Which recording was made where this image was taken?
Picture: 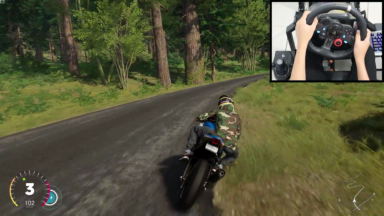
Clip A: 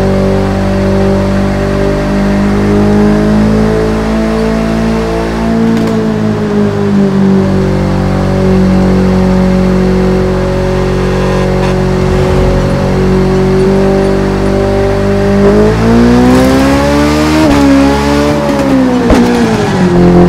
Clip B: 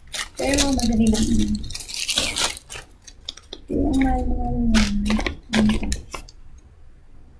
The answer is A